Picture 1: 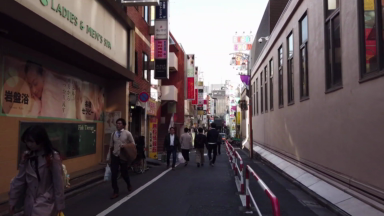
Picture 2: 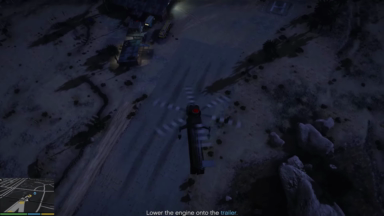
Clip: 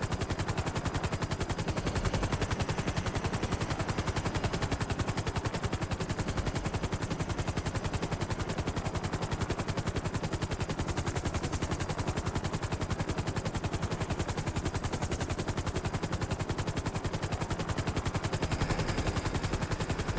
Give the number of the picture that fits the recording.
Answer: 2